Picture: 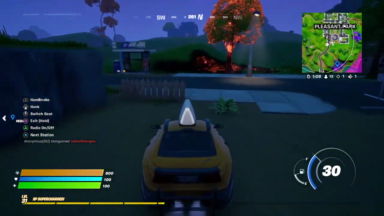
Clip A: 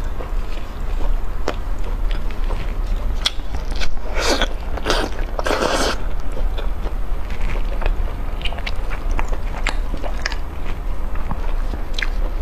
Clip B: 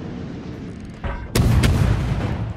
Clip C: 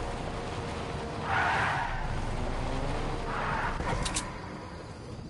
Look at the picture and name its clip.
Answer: C